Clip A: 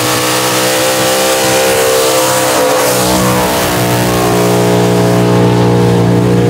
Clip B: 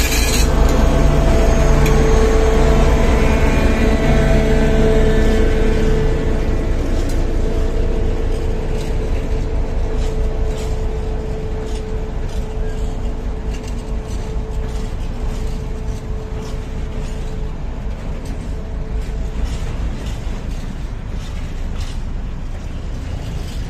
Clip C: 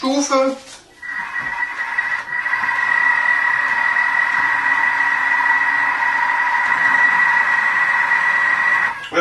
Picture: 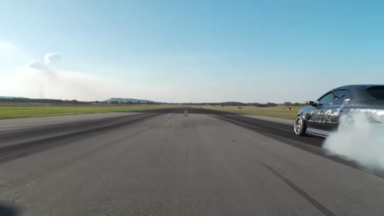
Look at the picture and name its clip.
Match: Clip A